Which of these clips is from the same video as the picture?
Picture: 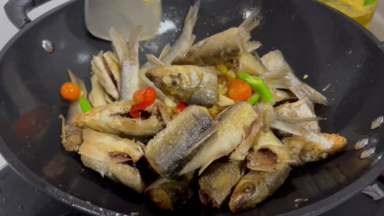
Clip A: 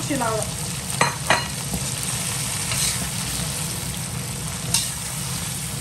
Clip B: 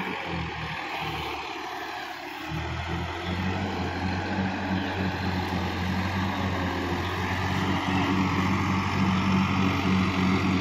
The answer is A